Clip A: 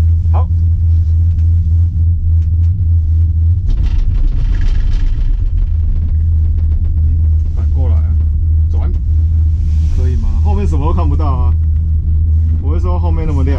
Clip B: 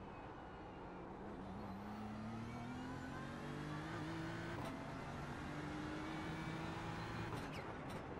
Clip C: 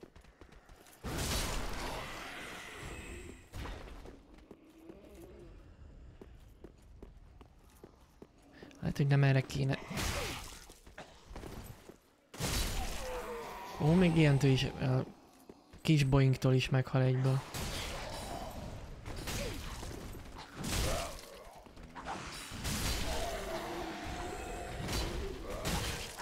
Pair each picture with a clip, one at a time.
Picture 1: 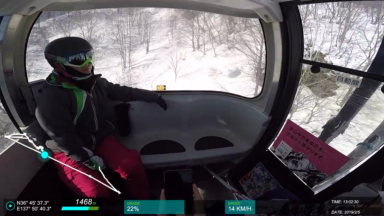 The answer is A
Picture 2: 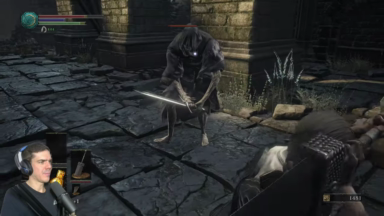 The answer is C